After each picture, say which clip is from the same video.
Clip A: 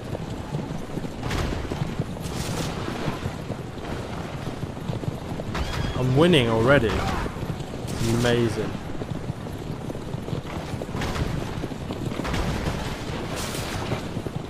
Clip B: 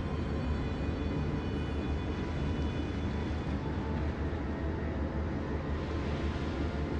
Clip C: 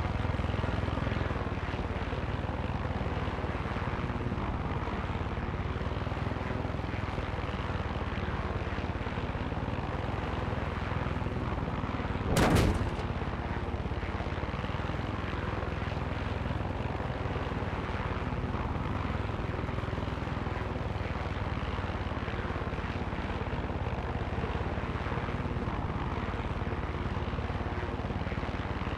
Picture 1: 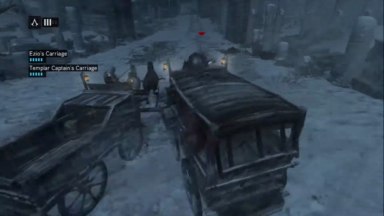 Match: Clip A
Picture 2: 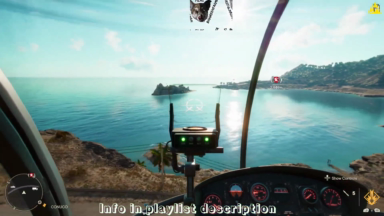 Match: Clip C